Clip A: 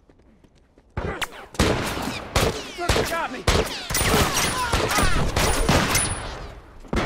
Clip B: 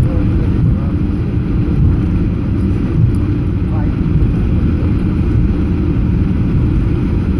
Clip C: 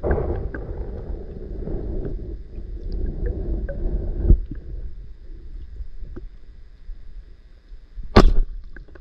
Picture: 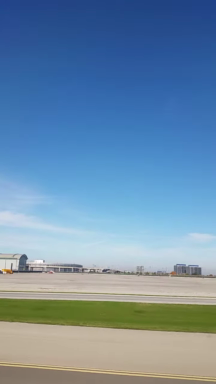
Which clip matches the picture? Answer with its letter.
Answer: B